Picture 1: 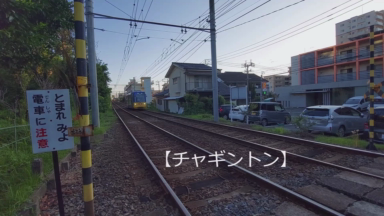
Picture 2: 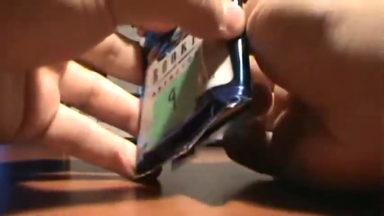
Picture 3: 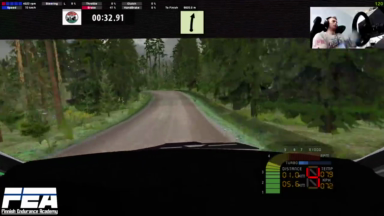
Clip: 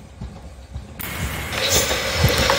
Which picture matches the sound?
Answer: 1